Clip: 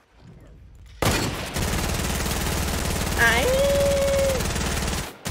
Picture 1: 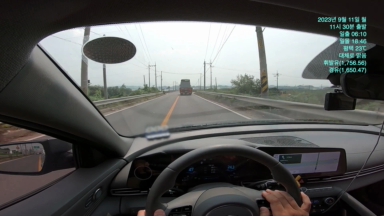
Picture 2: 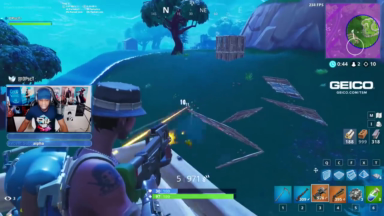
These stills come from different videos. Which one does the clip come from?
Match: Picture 2